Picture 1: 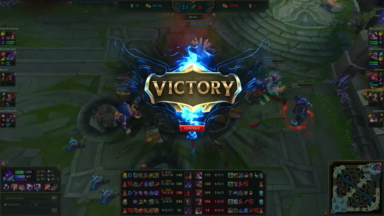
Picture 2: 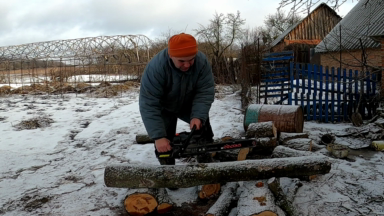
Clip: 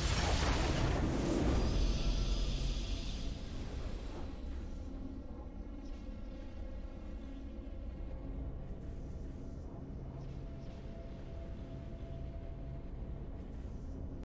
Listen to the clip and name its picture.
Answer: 1